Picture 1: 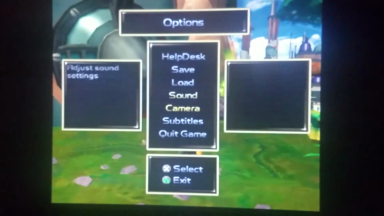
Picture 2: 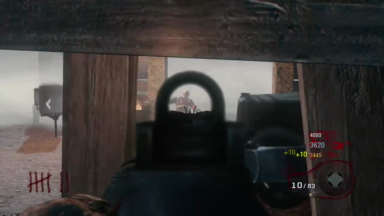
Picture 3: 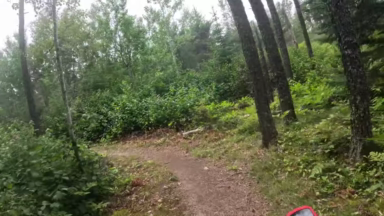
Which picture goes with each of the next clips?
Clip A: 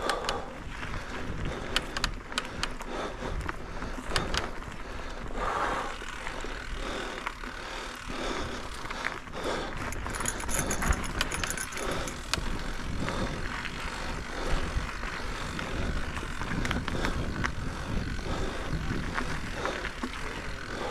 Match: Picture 3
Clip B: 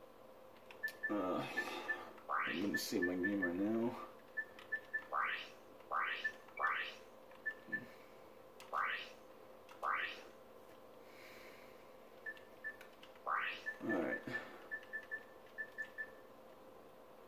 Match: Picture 1